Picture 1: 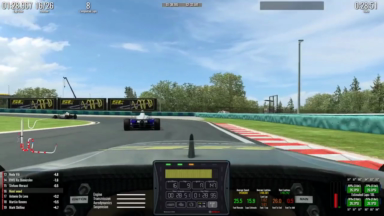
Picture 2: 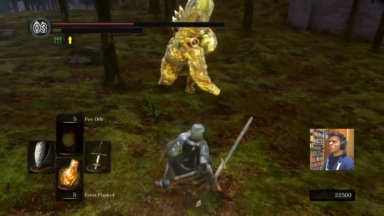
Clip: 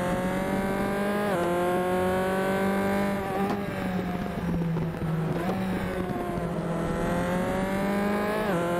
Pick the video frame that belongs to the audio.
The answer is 1